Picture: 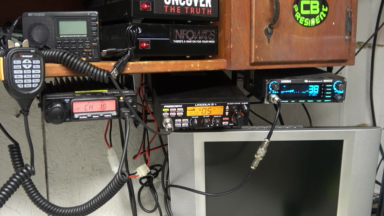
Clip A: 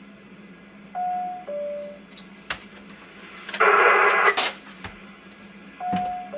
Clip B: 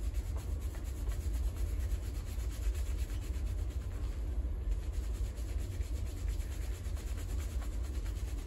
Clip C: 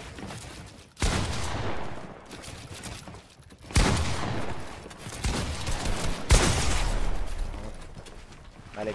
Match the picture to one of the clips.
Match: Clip A